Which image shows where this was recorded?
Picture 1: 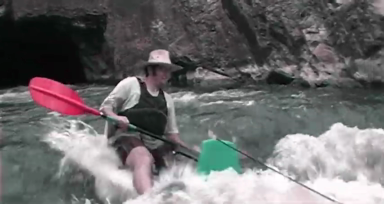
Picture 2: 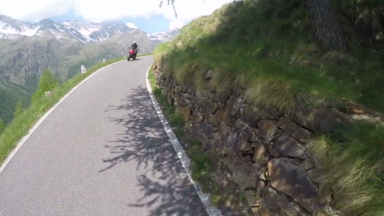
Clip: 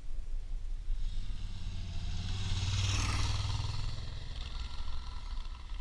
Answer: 2